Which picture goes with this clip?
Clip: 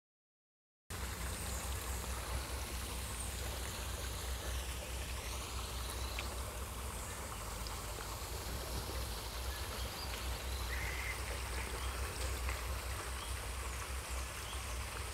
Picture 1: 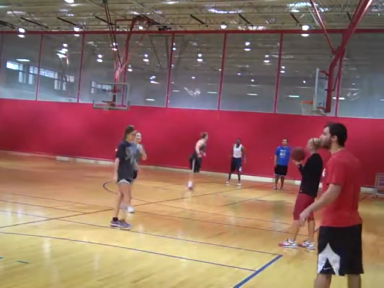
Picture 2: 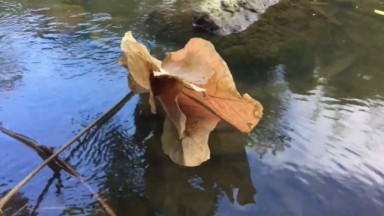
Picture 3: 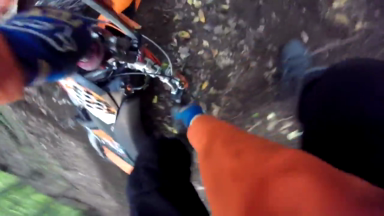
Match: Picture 2